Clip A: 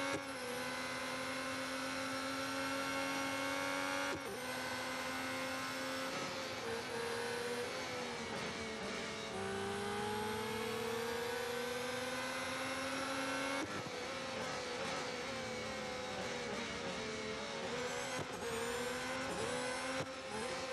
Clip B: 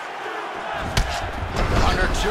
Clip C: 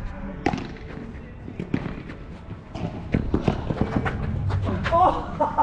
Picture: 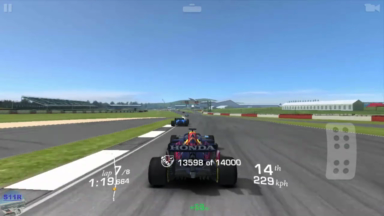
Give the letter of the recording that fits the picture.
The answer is A